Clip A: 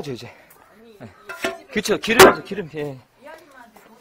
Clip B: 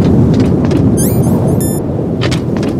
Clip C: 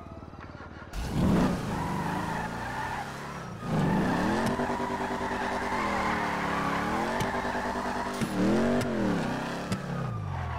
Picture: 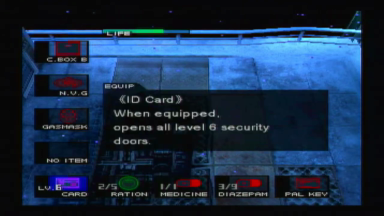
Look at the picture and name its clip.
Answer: B